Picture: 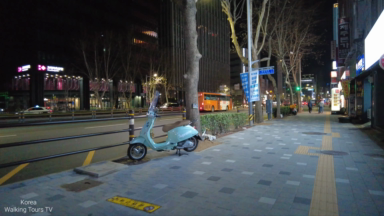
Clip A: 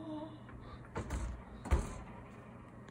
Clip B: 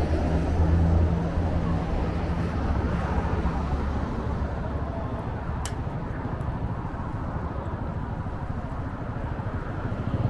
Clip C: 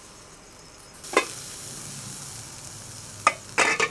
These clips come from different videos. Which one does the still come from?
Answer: B